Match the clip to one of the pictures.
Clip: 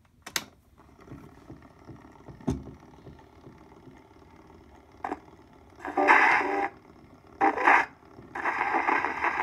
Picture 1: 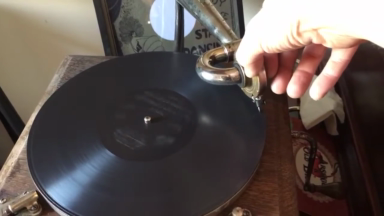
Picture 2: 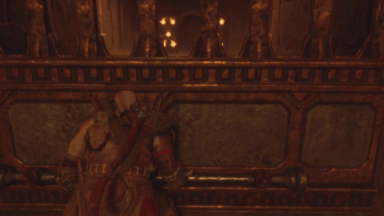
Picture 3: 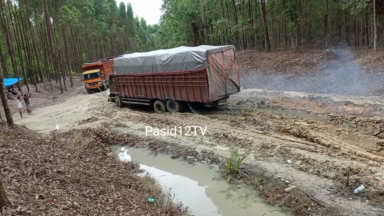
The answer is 1